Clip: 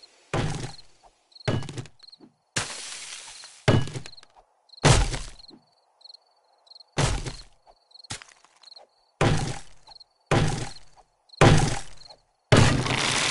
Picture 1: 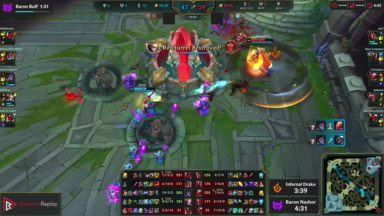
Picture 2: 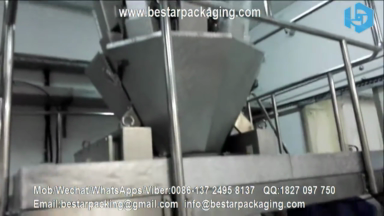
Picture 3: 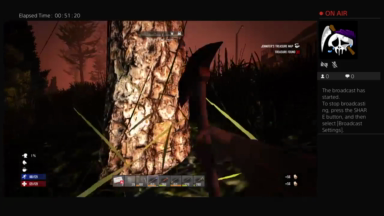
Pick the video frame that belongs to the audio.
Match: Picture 3